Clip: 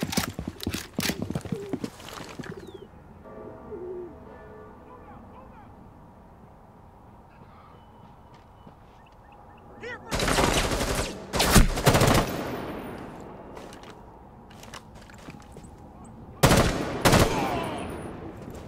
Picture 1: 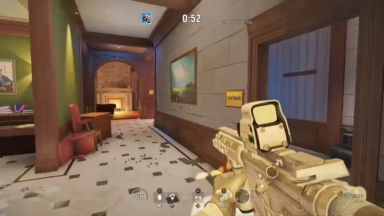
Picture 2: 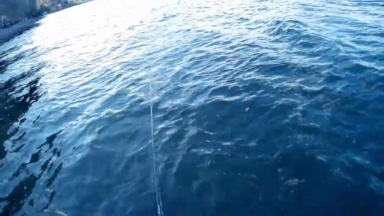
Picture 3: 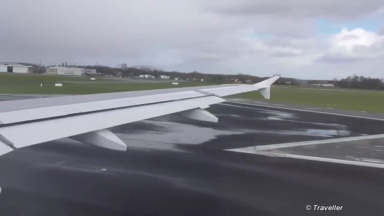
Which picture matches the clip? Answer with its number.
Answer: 1